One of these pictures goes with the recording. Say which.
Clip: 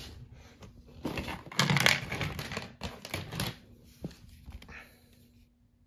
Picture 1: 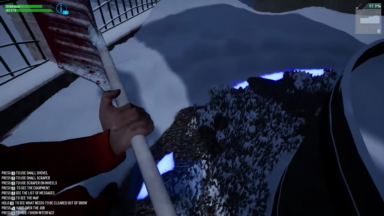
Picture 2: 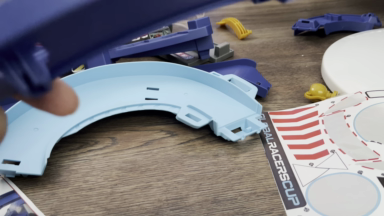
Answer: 2